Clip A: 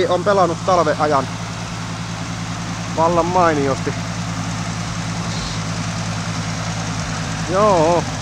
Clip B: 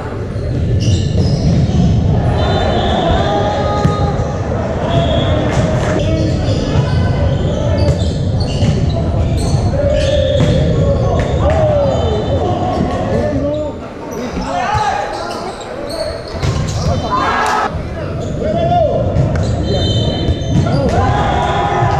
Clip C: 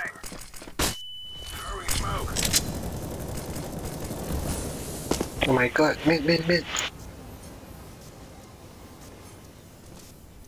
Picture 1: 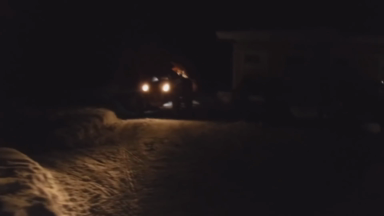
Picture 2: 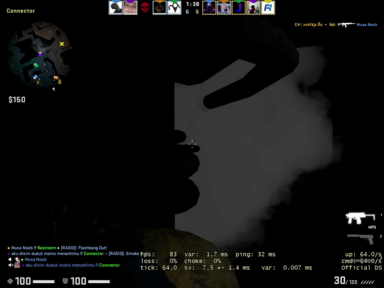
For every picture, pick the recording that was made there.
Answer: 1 A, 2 C